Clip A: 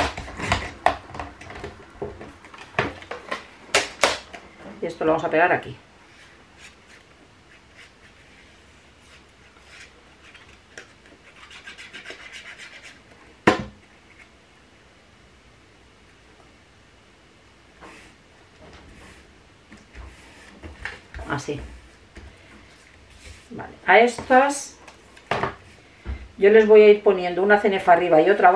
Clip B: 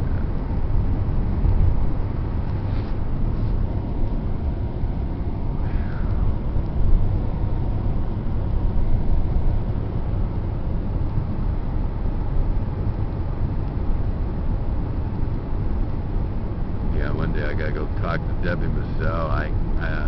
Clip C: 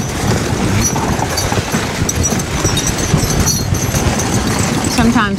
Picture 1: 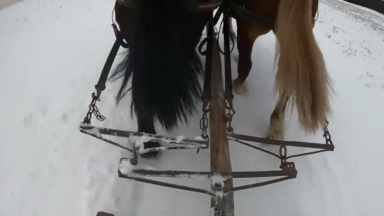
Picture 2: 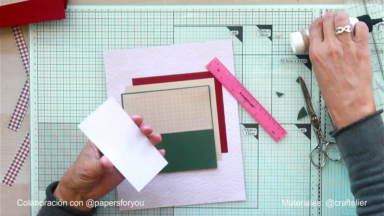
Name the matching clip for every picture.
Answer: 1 C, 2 A